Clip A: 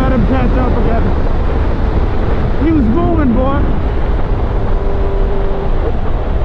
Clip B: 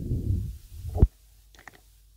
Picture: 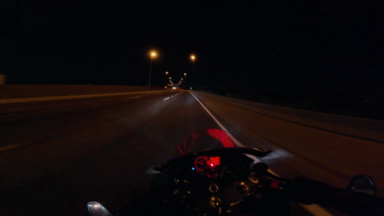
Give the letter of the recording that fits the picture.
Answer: A